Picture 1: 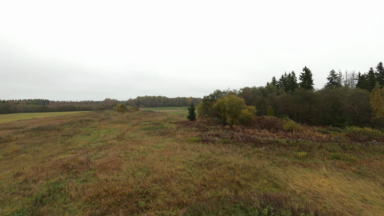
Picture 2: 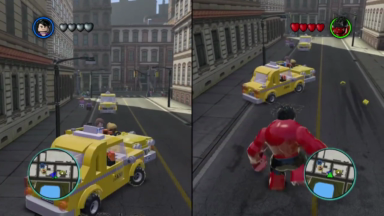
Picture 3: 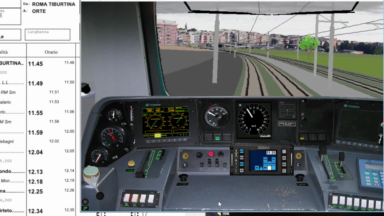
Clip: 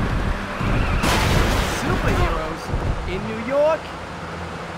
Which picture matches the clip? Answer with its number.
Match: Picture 2